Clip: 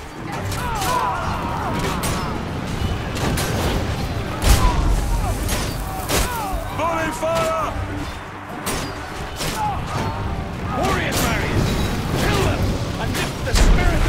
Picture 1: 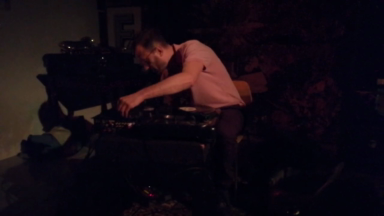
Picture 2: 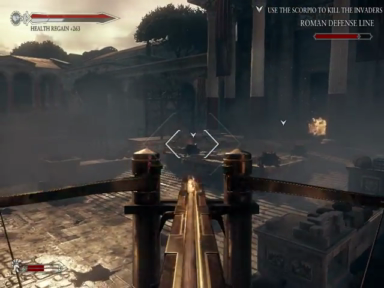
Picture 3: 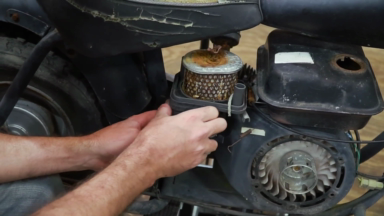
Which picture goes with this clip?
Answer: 2